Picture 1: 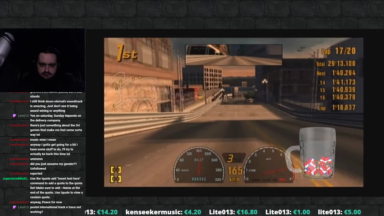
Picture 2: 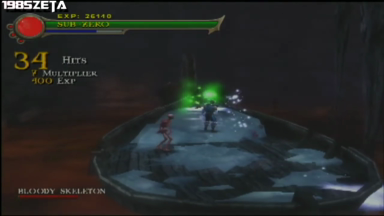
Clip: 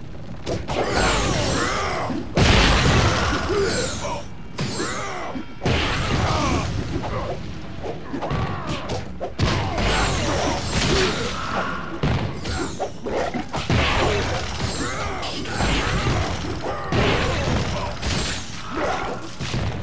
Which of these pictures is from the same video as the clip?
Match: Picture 2